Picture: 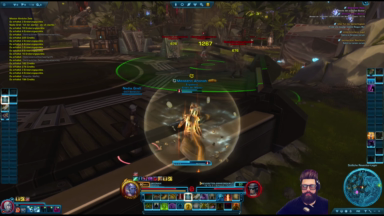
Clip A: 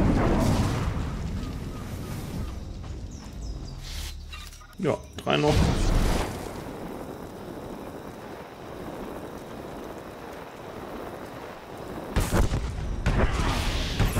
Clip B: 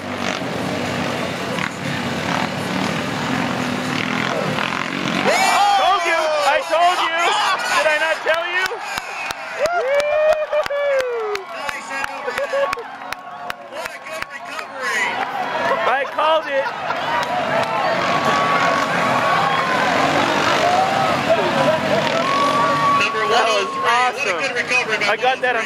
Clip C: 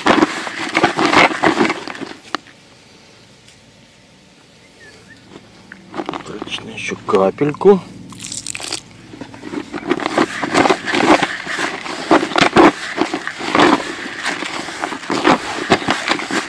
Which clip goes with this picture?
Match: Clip A